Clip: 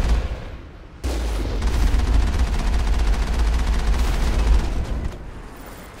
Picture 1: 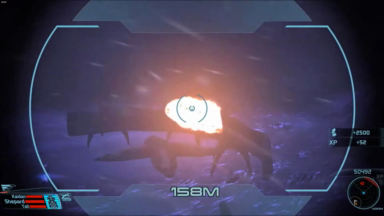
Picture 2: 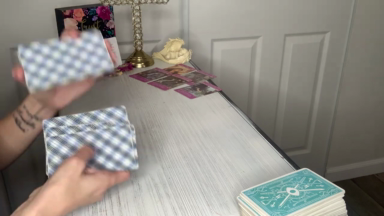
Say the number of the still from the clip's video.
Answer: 1